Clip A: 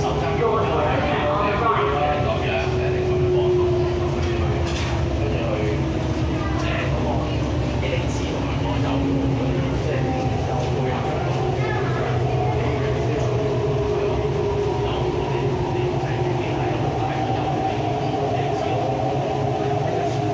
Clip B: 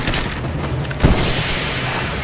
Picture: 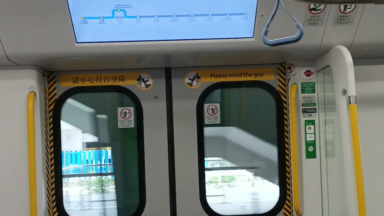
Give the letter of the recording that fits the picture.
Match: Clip A